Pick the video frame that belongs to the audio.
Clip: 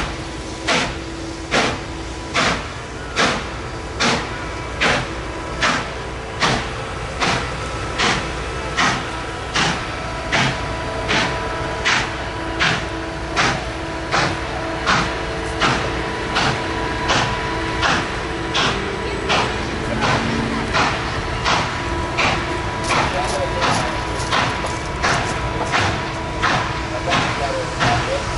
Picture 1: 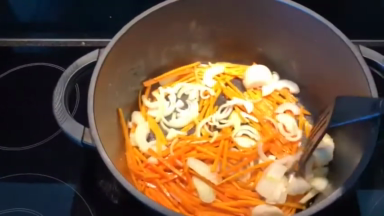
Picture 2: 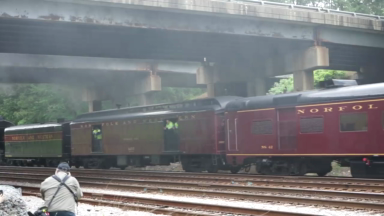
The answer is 2